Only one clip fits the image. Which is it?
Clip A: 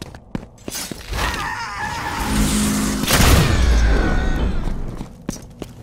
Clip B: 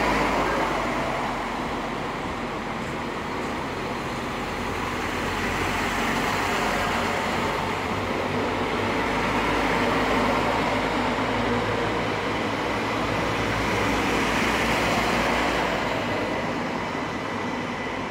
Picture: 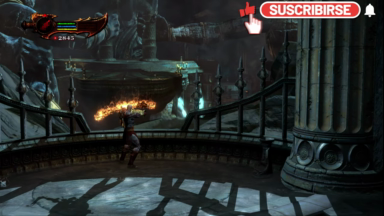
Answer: A